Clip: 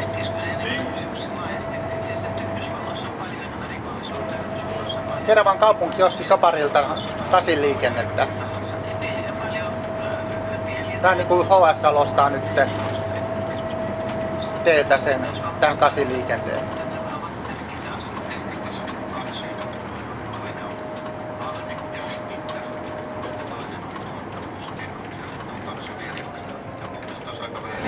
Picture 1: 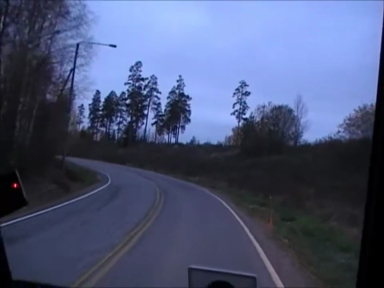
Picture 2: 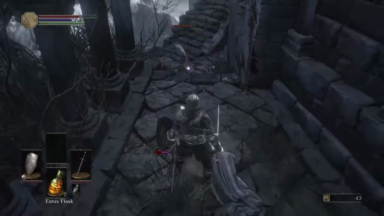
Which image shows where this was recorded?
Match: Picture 1